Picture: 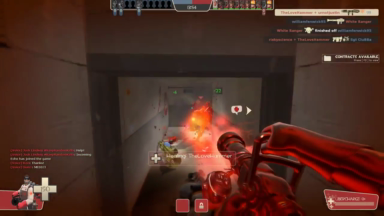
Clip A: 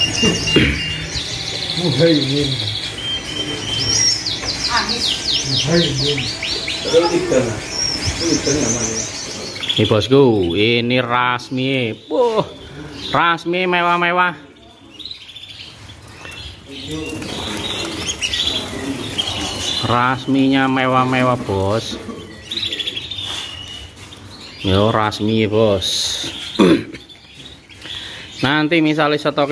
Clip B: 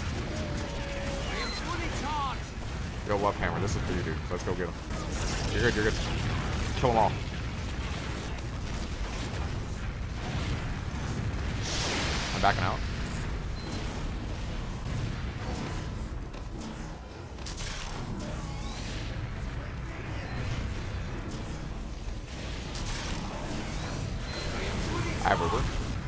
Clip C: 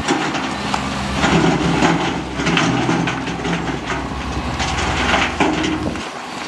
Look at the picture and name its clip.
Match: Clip B